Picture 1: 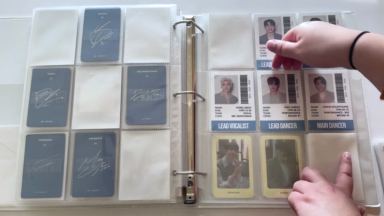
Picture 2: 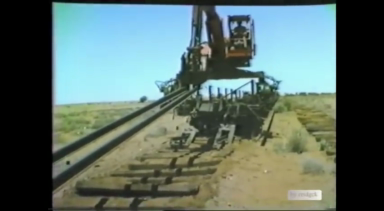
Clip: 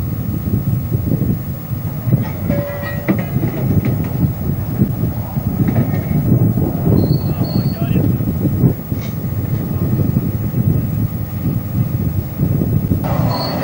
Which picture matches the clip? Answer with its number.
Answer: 2